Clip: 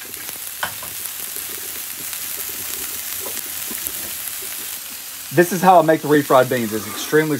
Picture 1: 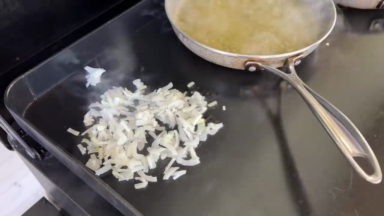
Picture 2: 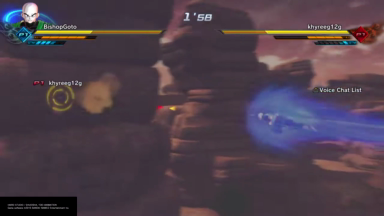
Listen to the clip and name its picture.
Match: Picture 1